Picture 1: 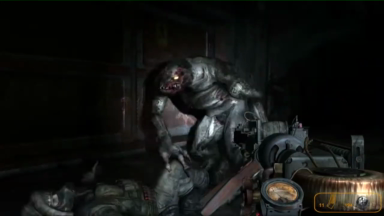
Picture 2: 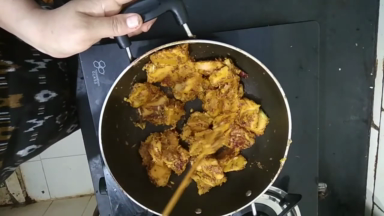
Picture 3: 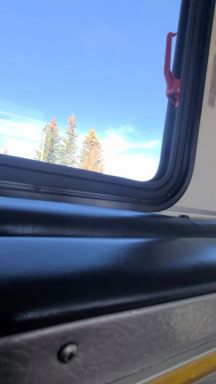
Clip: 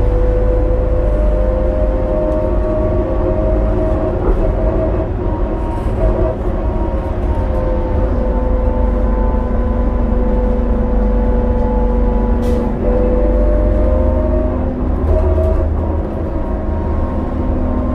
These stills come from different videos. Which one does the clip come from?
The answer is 3